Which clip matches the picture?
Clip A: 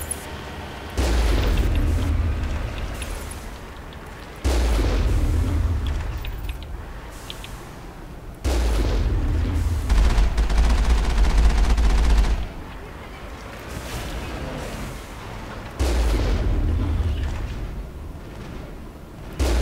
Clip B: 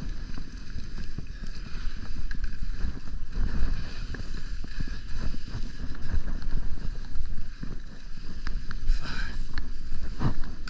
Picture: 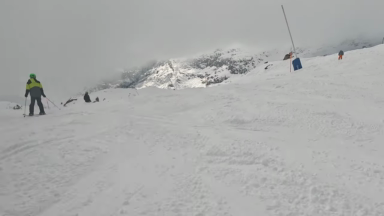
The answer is B